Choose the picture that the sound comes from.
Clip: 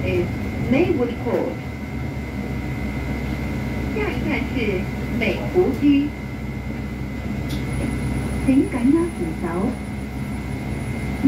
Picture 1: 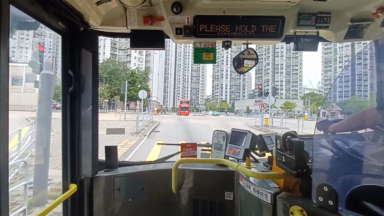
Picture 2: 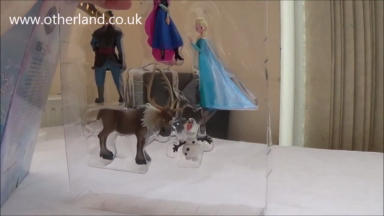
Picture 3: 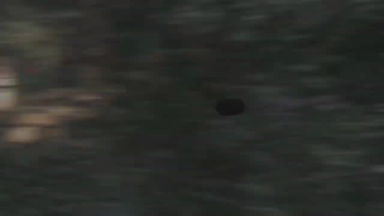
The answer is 1